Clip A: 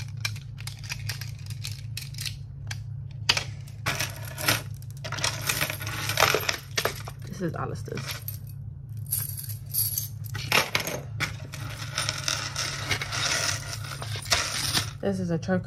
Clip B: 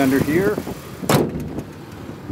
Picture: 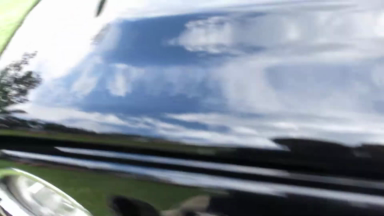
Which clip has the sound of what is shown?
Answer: B